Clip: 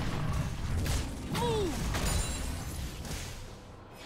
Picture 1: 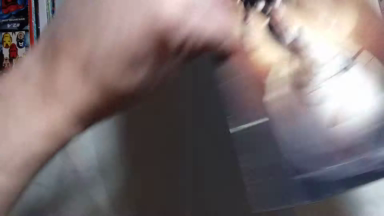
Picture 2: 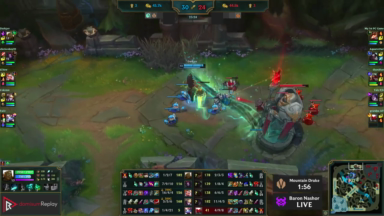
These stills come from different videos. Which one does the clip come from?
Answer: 2